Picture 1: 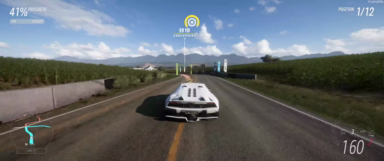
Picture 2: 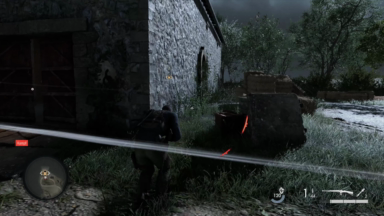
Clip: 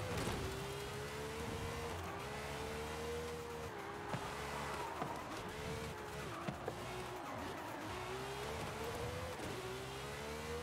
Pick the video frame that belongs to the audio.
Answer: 1